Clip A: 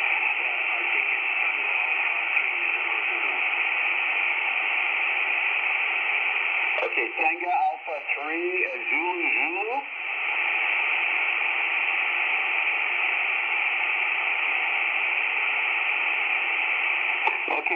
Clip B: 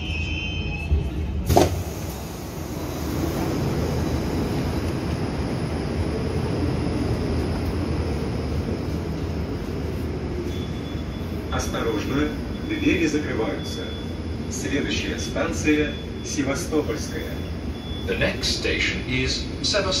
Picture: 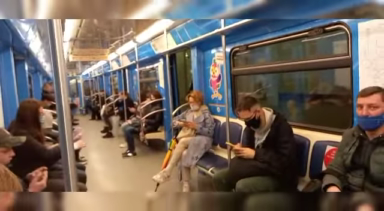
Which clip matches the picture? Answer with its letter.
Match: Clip B